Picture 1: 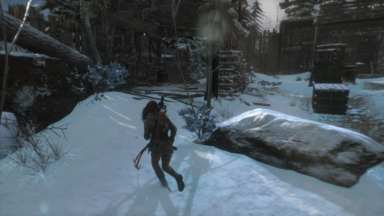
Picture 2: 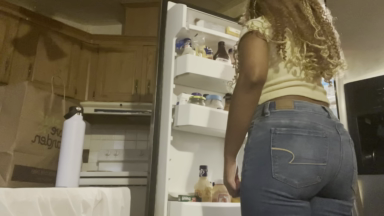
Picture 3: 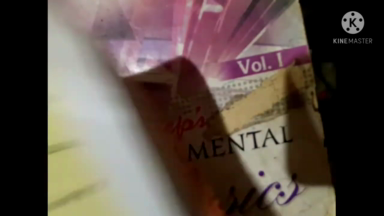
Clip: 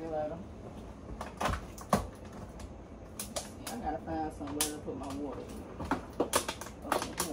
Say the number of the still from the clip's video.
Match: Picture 2